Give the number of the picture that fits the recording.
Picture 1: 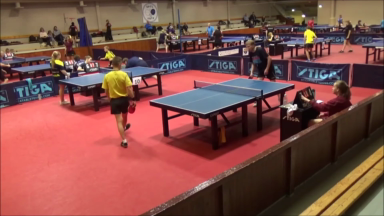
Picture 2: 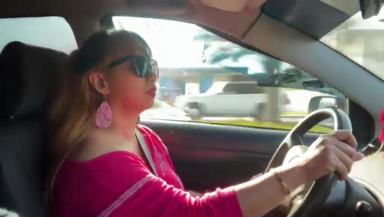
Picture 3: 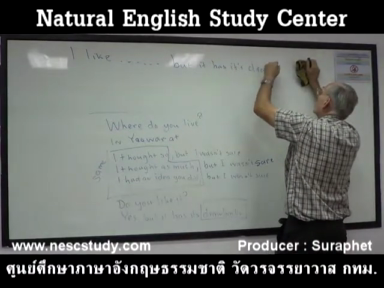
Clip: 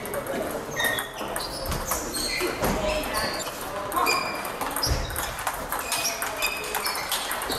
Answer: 1